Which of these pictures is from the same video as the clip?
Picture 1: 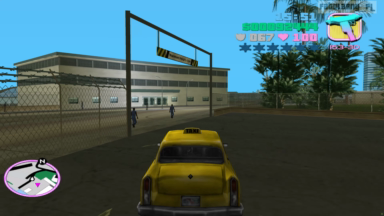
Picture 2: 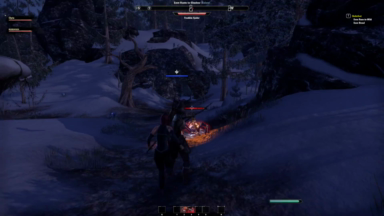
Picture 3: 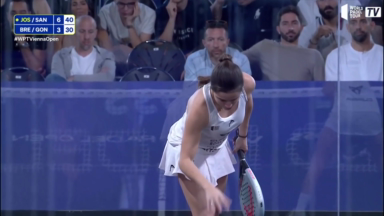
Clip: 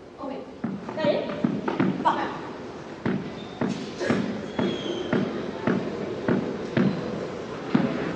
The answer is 3